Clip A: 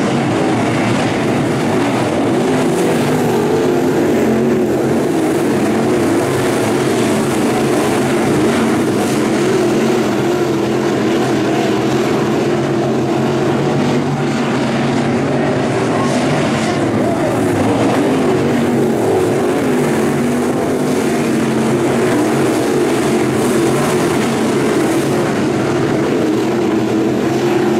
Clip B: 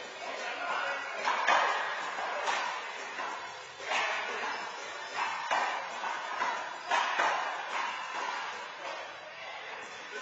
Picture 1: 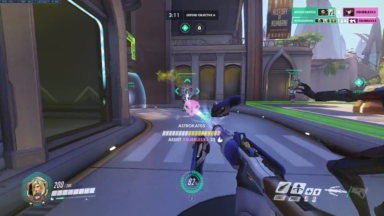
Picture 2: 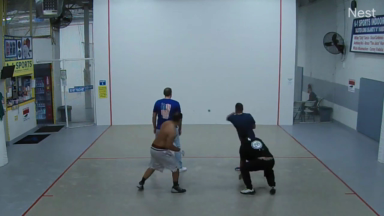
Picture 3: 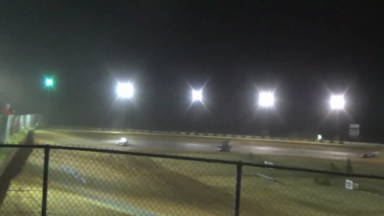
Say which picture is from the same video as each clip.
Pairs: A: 3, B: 2